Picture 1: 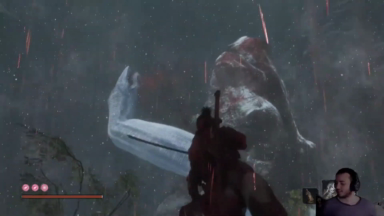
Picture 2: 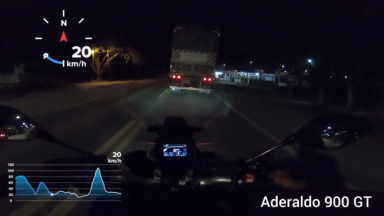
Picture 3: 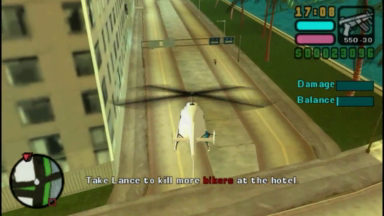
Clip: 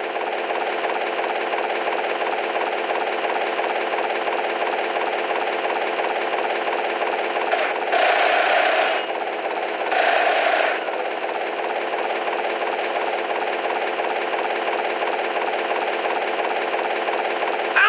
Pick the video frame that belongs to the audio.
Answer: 3